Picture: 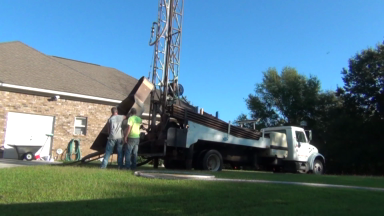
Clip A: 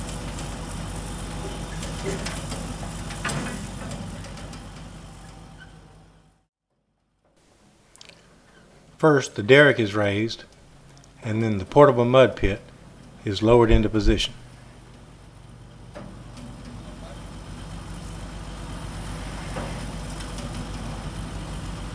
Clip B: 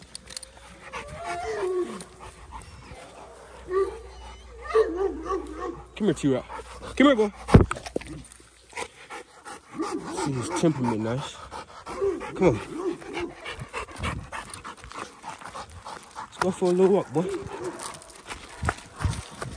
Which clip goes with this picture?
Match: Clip A